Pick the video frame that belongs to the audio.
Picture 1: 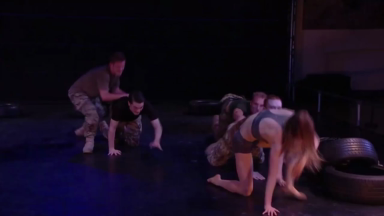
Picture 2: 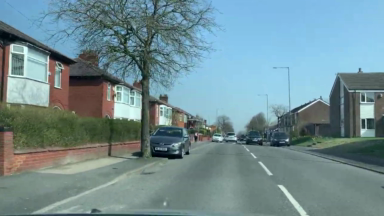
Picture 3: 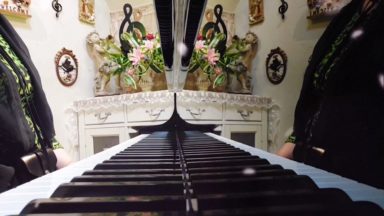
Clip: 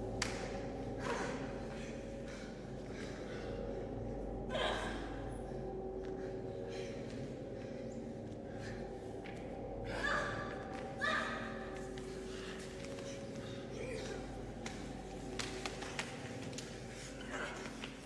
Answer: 1